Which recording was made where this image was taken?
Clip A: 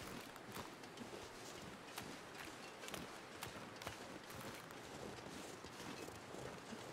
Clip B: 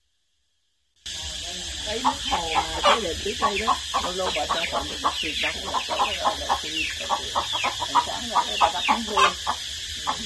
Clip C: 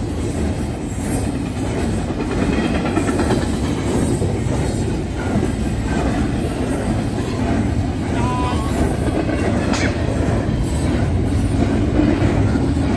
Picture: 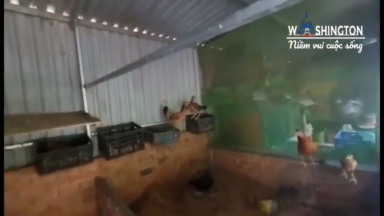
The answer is B